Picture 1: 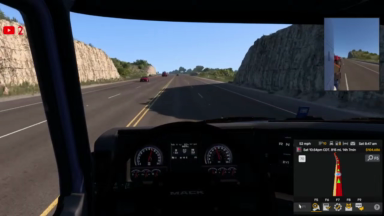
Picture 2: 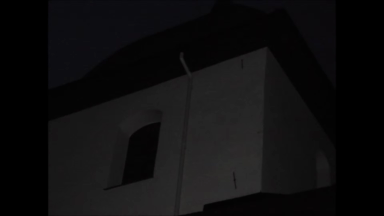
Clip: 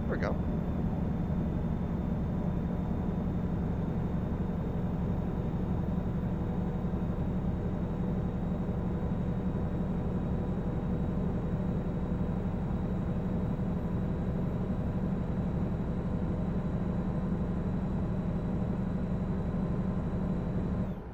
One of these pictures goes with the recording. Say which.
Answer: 1